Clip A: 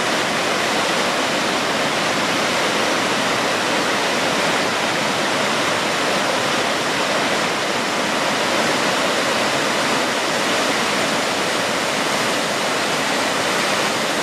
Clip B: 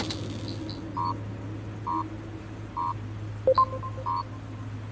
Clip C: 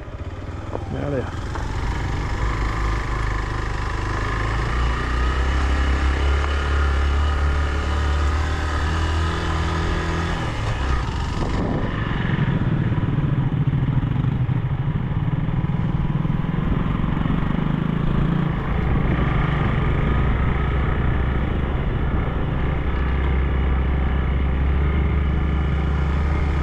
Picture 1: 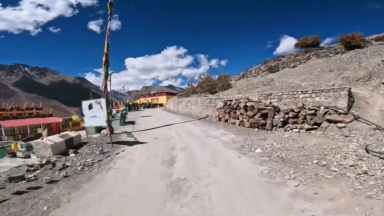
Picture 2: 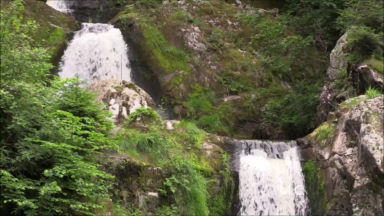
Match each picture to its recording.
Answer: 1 C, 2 A